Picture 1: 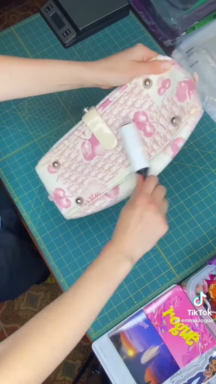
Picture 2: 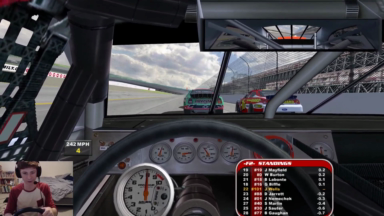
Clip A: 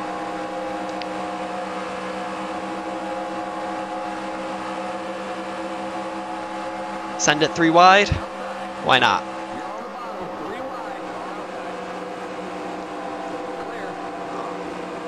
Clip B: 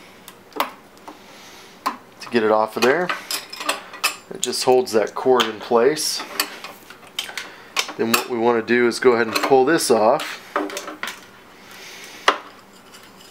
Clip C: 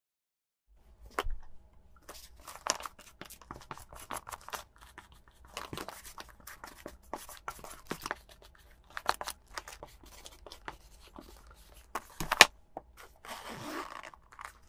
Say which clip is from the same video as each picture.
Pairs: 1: C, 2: A